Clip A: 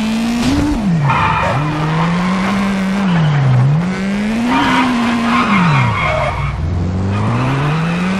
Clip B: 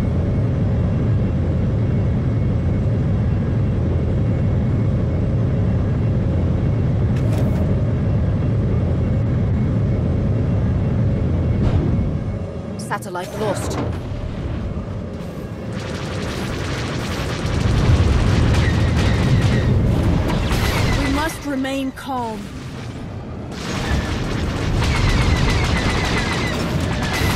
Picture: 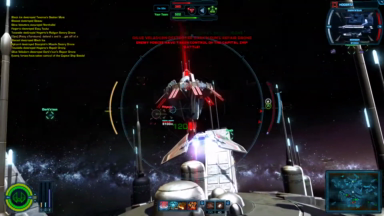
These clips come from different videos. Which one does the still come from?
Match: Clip B